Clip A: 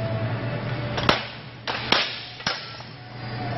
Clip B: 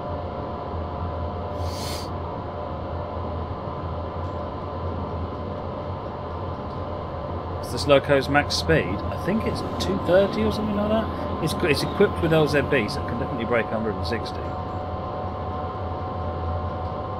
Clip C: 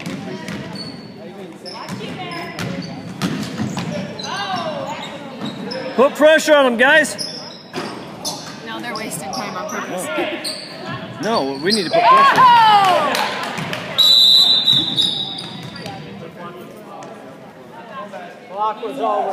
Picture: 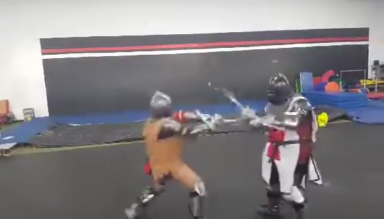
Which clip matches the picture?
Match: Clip A